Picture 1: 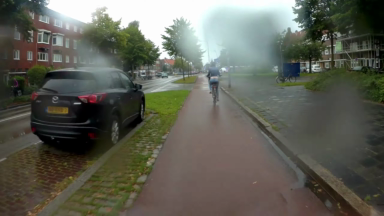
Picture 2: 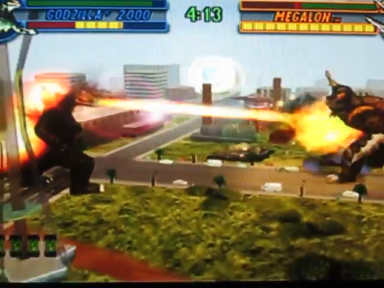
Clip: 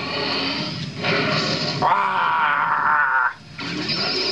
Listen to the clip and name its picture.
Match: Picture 2